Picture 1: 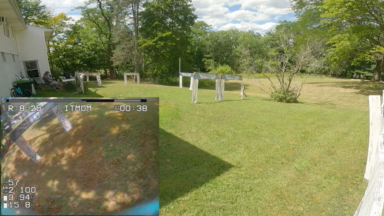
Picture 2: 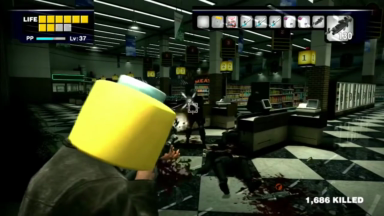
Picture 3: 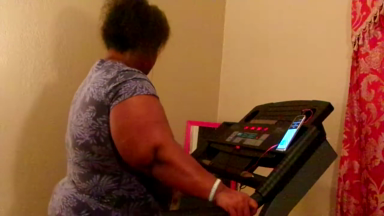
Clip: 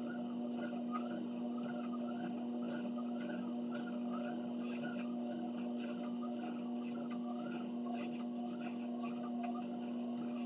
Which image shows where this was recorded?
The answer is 3